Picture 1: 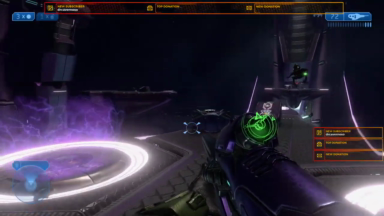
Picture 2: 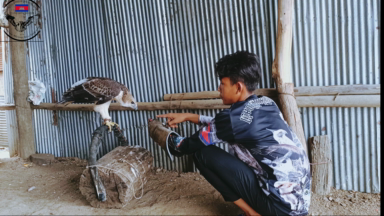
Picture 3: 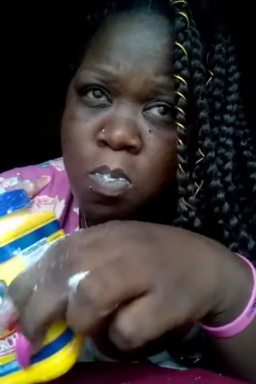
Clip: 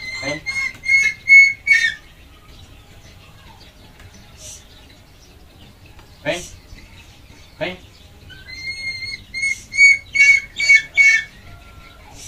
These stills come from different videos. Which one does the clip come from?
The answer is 2